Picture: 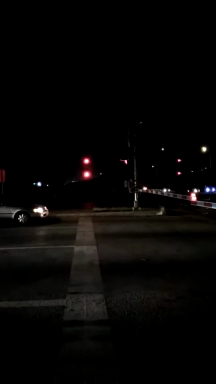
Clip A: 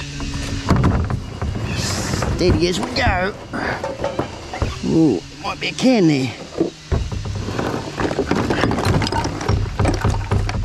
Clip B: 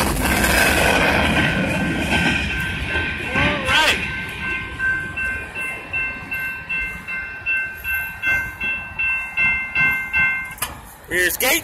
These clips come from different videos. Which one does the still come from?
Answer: B